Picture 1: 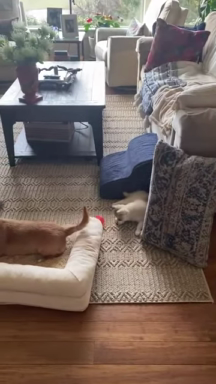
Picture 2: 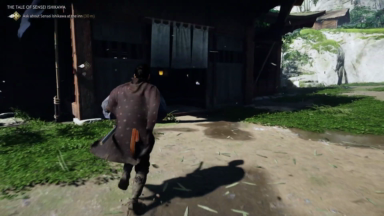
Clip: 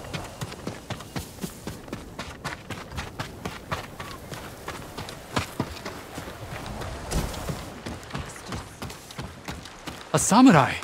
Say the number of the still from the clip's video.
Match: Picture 2